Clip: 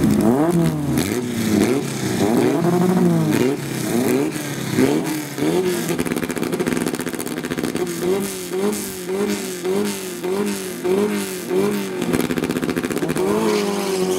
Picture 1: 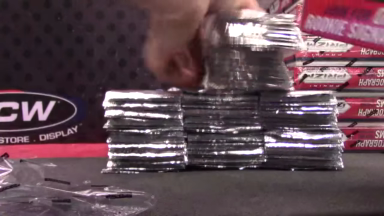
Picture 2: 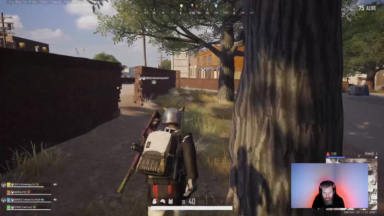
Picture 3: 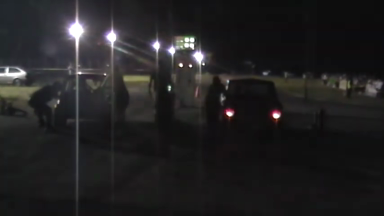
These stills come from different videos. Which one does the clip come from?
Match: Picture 3